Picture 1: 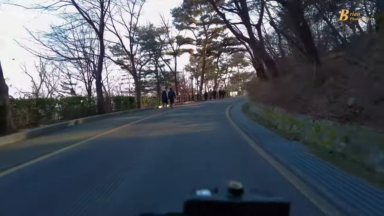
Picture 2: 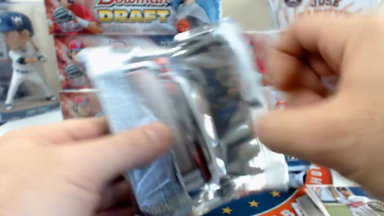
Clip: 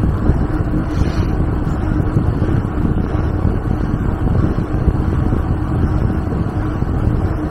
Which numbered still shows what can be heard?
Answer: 1